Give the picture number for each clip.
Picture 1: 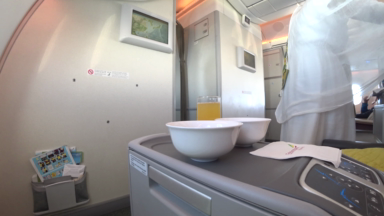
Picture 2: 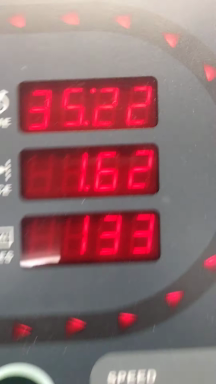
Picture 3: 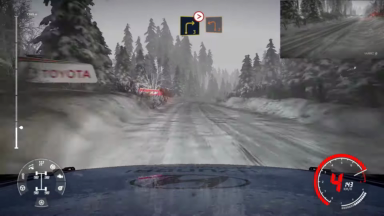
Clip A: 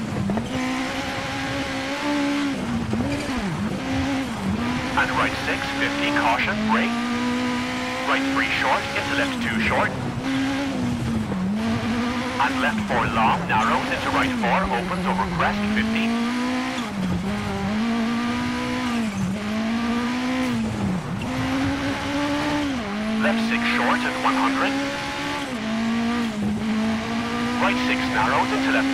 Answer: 3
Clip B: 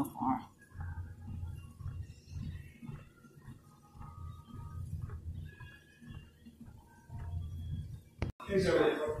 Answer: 2